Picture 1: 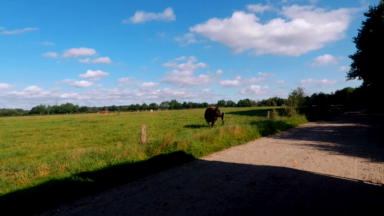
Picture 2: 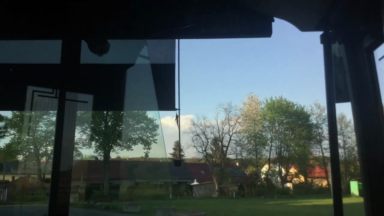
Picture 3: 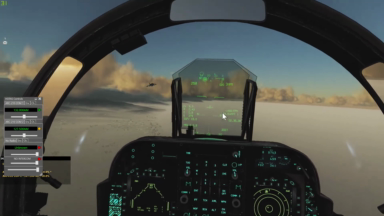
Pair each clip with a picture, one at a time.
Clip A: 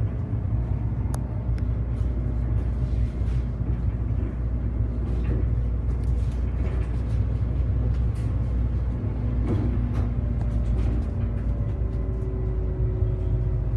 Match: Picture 2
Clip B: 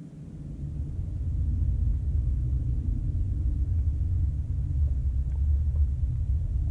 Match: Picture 1